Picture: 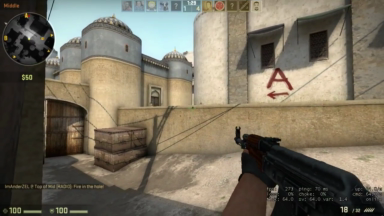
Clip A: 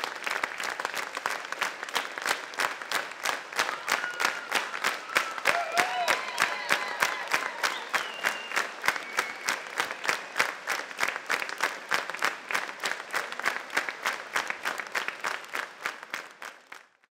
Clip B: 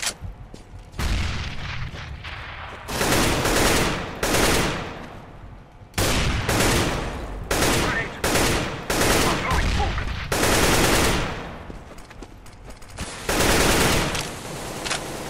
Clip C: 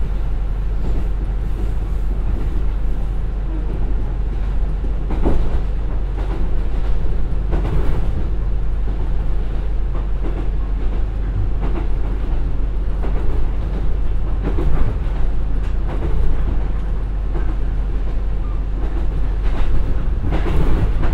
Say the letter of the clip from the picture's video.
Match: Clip B